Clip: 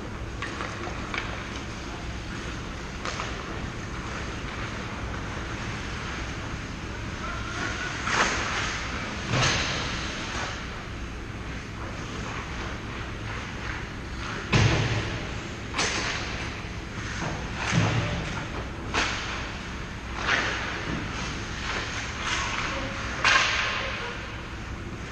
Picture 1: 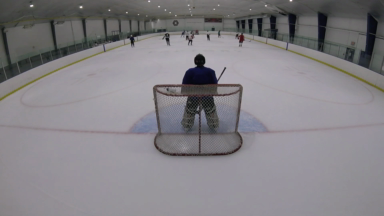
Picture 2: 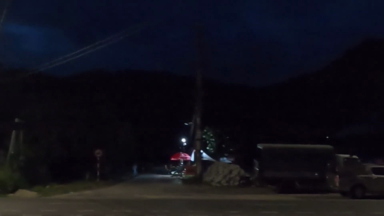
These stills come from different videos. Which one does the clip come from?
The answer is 1